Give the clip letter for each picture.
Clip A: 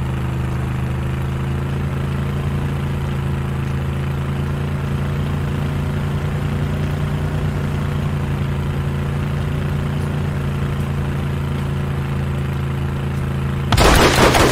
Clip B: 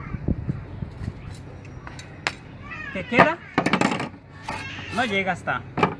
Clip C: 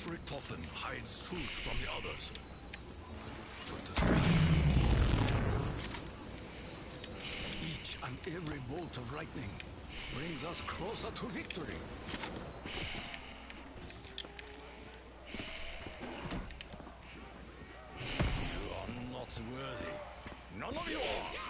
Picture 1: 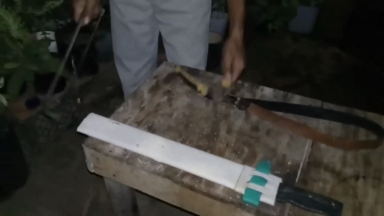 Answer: B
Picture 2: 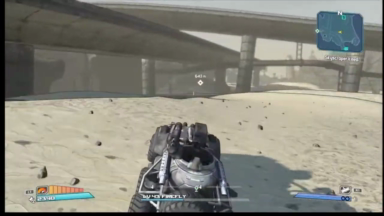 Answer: A